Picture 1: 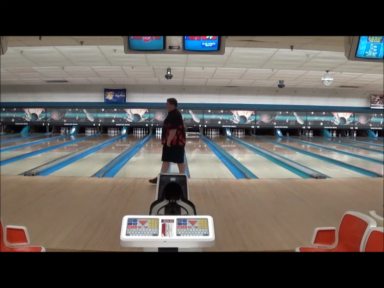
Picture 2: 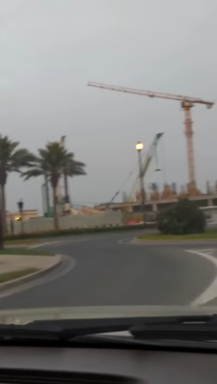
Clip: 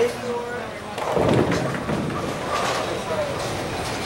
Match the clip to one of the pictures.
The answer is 1